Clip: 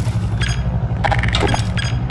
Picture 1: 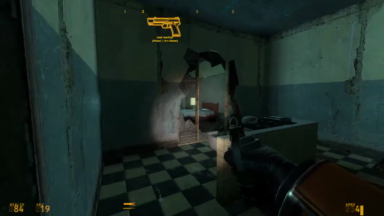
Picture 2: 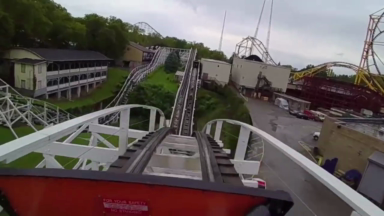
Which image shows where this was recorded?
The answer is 1